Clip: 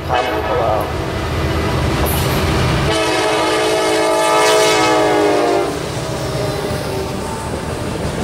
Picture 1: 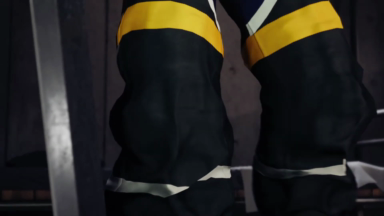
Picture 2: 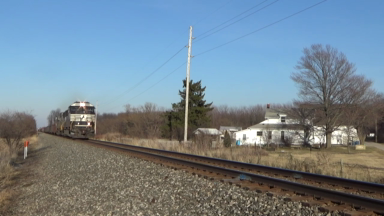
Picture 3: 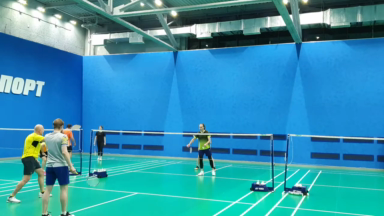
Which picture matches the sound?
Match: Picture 2